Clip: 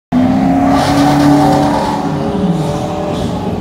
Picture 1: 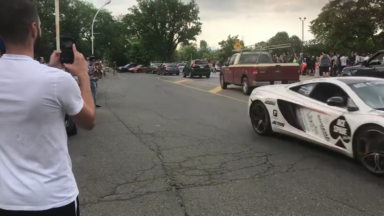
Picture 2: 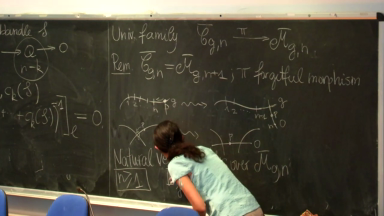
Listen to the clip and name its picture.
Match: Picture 1